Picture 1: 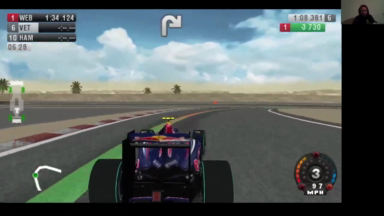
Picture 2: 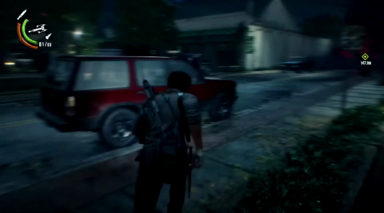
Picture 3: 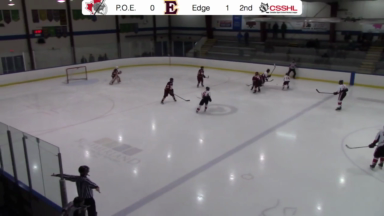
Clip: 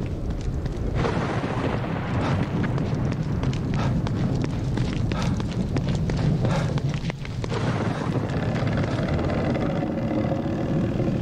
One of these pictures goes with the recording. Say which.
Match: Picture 2